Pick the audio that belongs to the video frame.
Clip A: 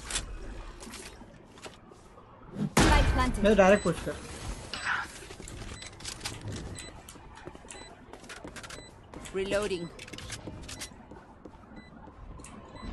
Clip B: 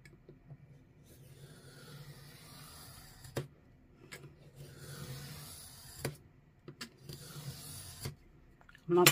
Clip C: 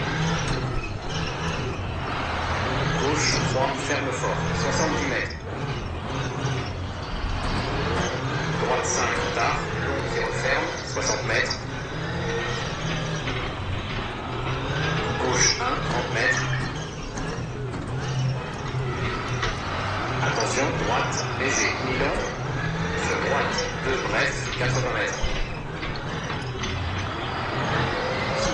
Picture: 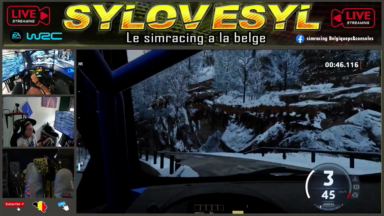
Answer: C